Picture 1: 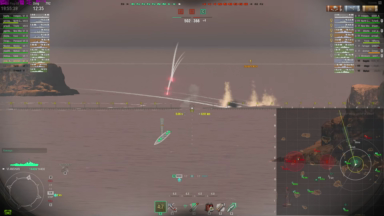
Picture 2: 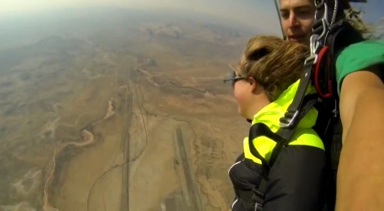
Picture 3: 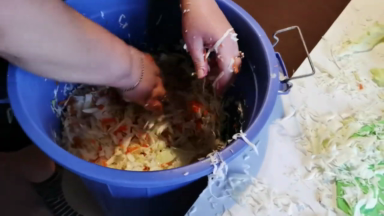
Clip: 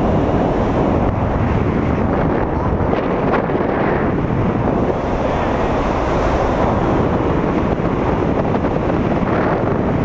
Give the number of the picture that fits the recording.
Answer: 2